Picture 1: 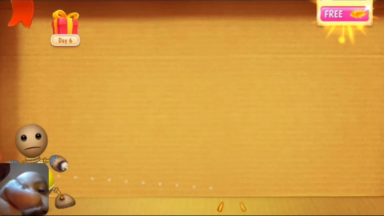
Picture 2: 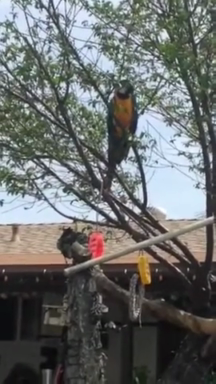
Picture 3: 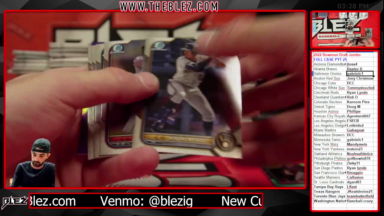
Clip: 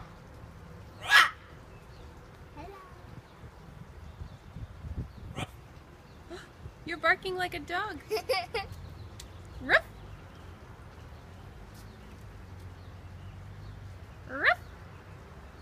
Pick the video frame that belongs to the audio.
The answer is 2